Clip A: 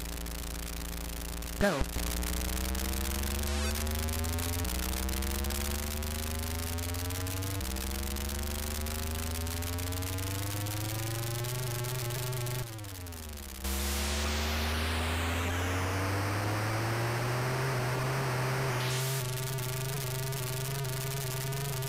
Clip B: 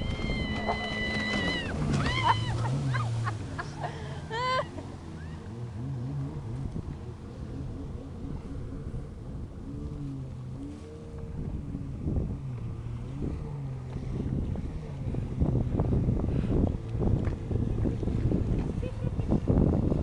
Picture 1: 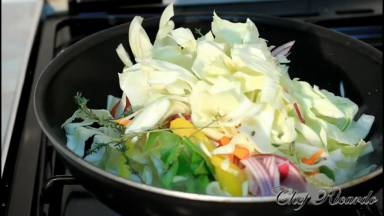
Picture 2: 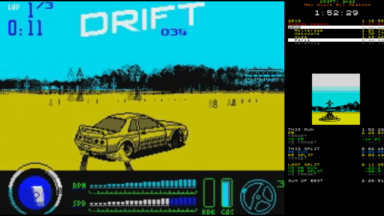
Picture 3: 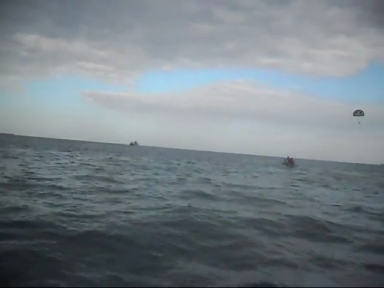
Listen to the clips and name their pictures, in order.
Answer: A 2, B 3